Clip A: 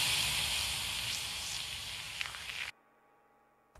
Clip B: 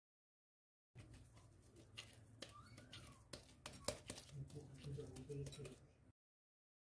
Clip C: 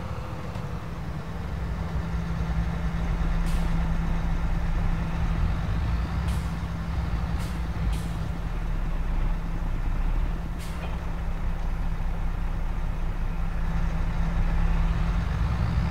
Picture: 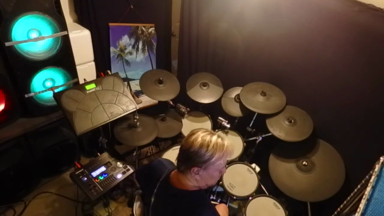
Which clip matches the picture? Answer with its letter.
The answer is A